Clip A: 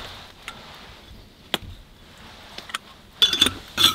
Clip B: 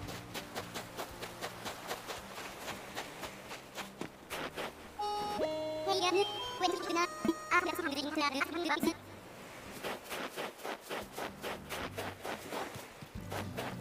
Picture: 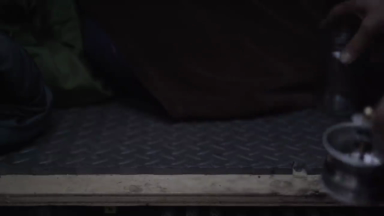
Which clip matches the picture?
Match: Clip A